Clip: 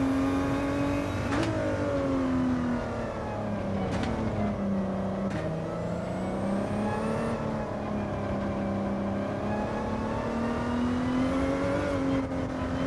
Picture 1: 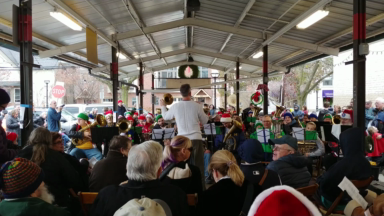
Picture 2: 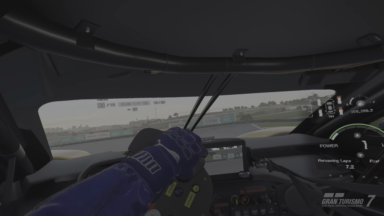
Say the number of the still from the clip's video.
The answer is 2